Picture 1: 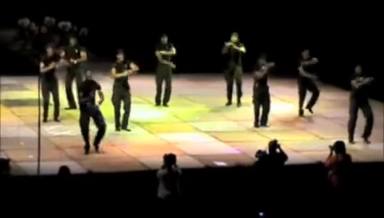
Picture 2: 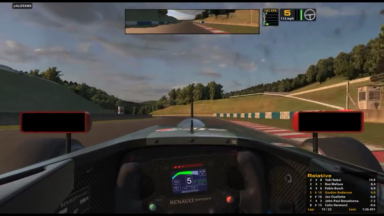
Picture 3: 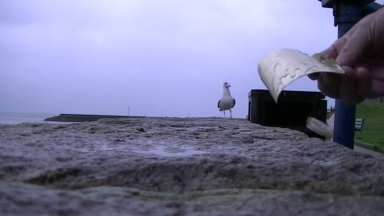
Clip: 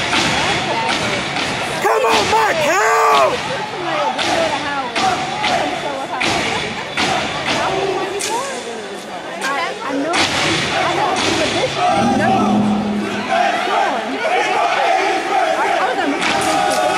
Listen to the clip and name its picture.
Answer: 1